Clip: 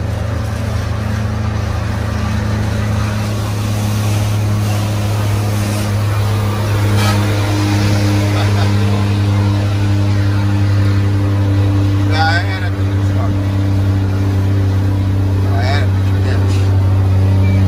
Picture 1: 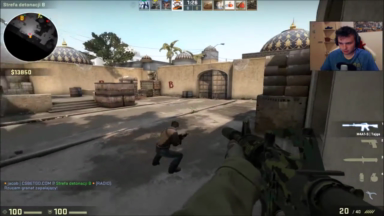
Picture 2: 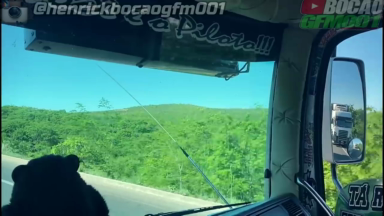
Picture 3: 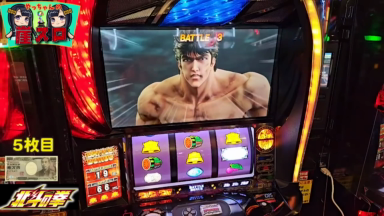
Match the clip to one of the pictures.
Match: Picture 2